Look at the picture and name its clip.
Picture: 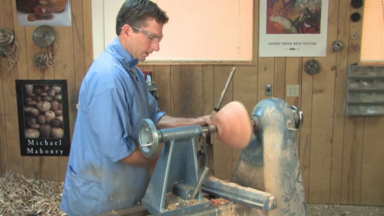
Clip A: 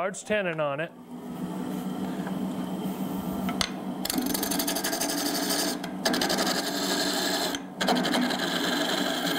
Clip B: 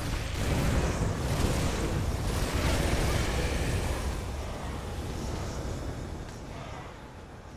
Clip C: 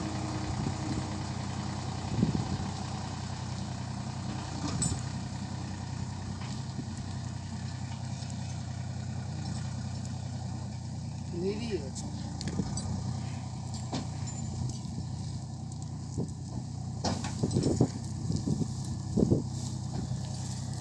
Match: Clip A